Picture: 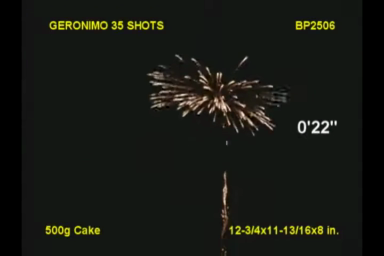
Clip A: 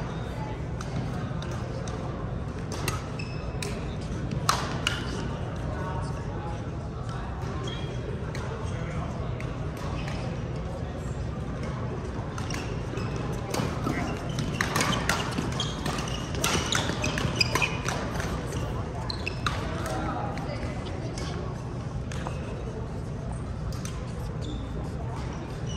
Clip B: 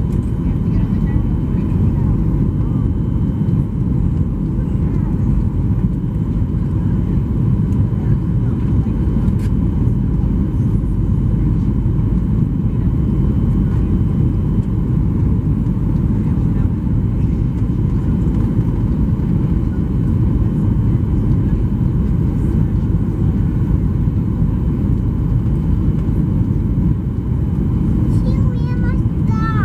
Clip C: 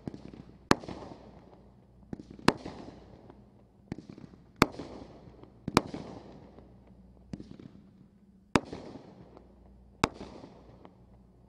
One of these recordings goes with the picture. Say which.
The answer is C